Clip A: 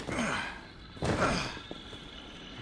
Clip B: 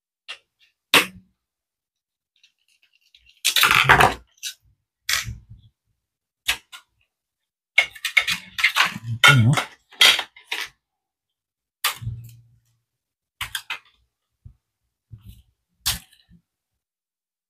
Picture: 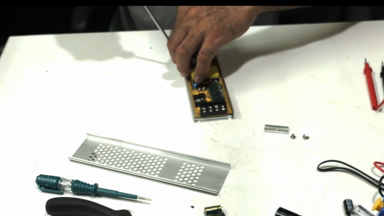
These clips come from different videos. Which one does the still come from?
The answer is B